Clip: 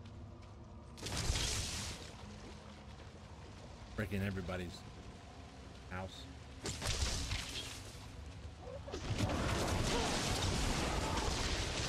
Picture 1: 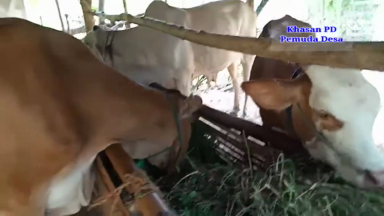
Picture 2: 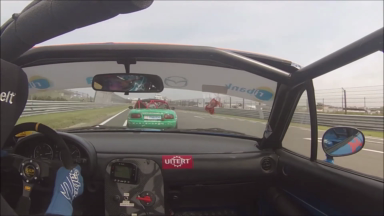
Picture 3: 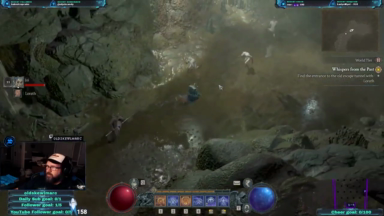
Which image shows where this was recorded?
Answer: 3